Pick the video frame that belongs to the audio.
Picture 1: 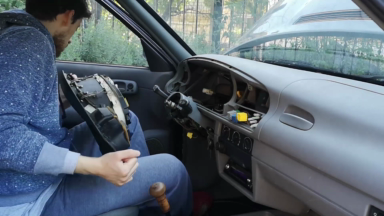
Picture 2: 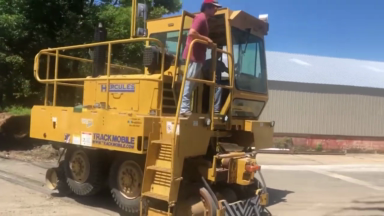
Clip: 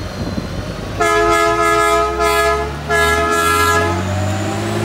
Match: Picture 2